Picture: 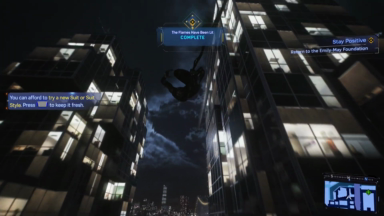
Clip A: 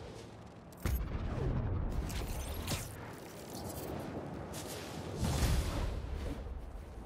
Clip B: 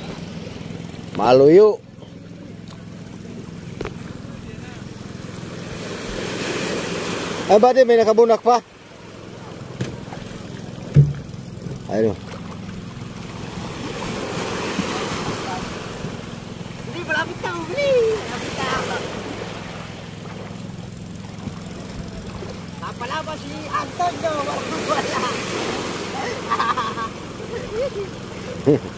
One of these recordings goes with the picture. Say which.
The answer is A